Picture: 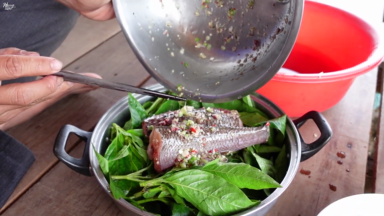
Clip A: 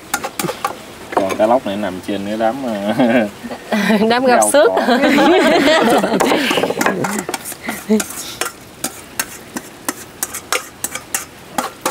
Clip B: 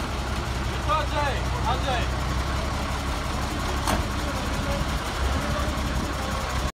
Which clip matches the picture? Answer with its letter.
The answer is A